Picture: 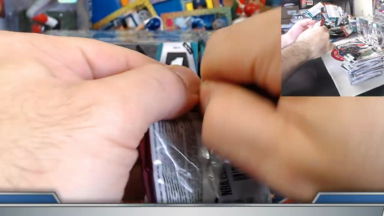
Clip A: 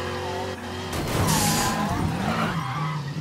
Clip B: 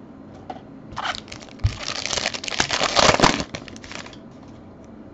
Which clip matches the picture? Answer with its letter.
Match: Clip B